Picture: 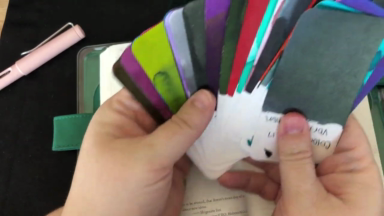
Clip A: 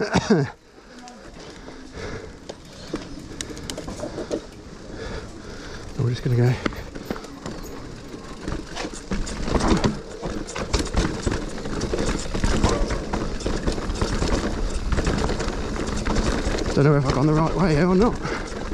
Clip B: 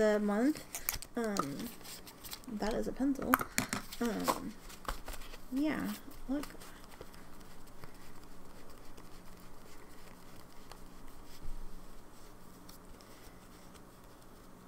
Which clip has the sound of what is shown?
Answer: B